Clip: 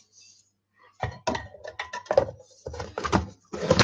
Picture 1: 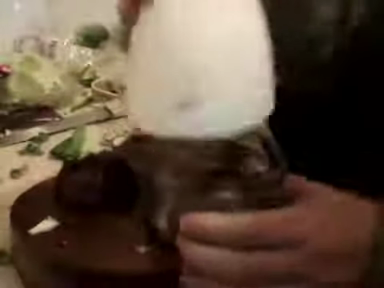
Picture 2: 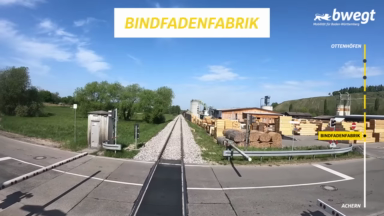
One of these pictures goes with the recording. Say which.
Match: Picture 1